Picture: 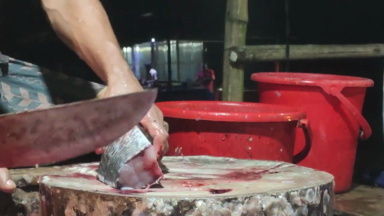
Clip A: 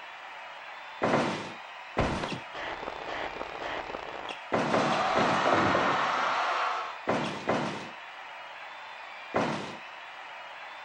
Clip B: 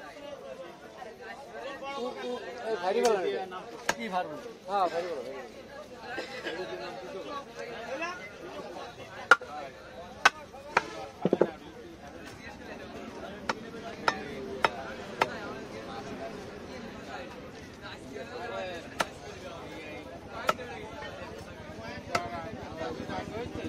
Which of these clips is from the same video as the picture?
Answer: B